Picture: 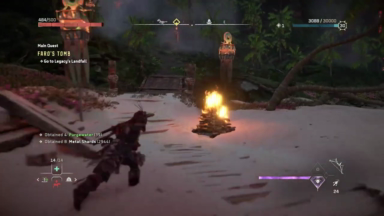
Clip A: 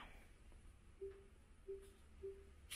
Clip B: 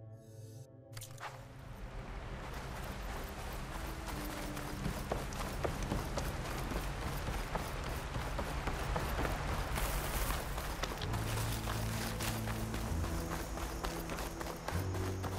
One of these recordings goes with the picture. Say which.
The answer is B